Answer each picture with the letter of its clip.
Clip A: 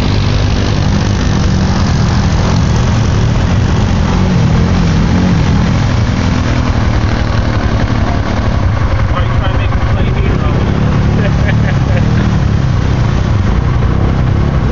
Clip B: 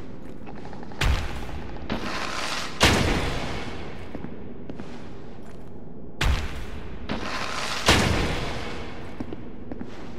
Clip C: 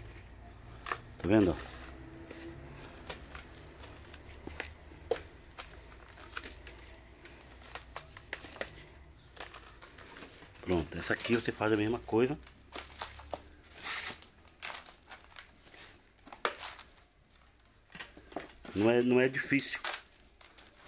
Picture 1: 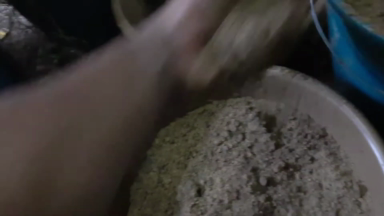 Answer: C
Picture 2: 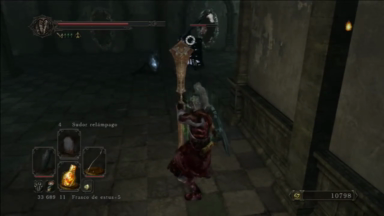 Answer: B